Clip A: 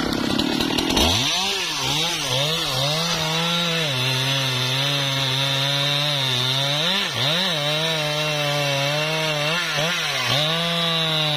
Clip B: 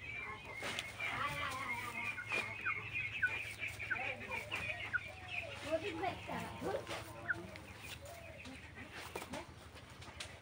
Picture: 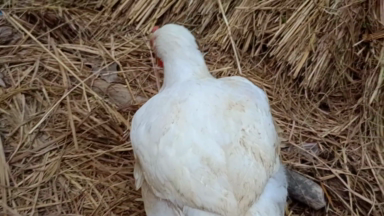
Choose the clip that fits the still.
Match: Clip B